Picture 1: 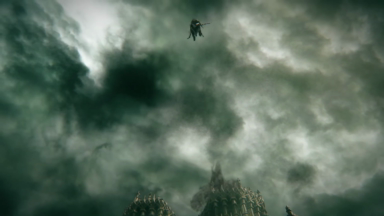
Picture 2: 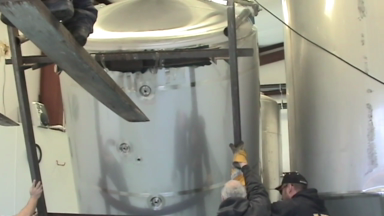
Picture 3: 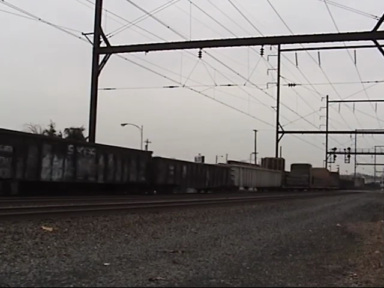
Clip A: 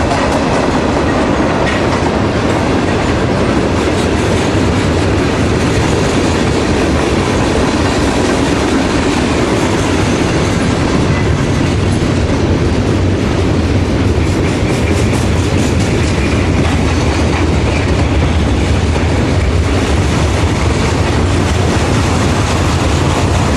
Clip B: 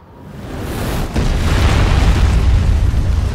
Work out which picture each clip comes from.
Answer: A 3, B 1